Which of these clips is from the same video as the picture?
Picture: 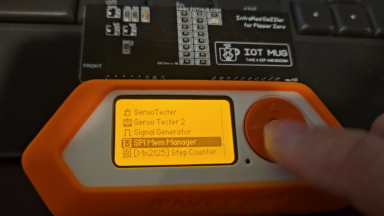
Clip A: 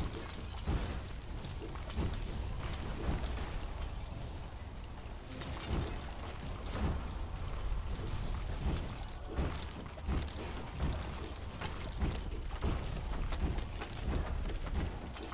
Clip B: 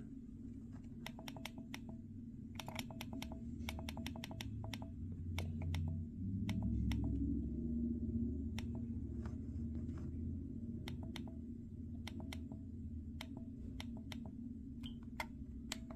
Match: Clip B